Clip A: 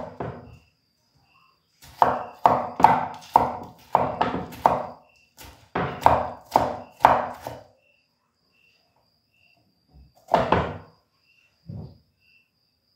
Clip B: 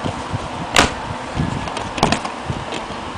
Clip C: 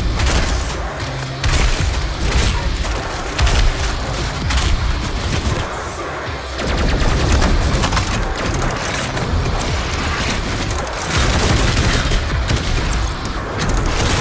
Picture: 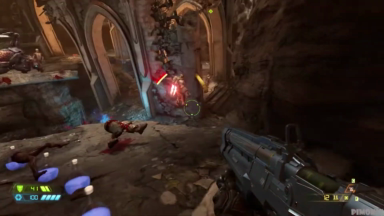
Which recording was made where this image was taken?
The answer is C